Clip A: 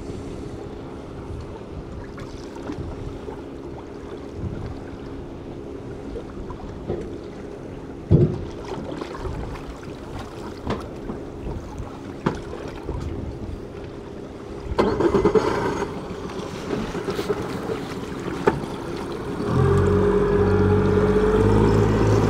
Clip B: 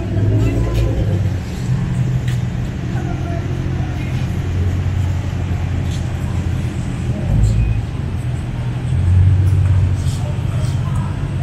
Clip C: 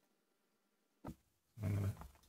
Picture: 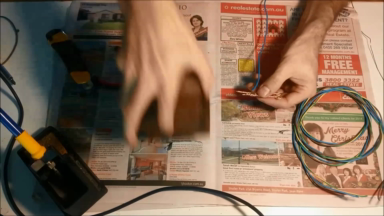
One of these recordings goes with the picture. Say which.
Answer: C